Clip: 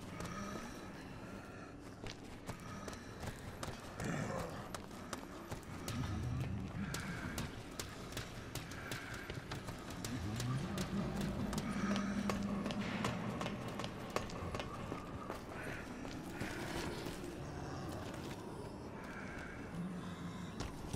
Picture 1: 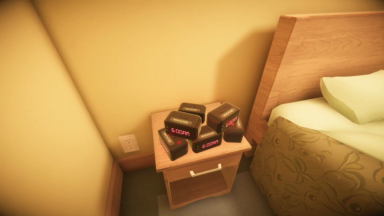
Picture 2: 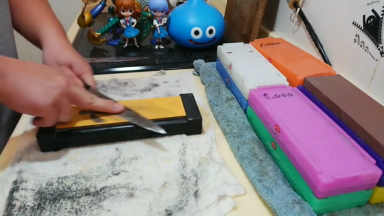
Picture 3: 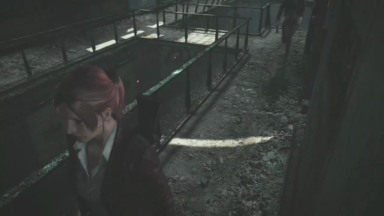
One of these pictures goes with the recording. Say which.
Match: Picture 3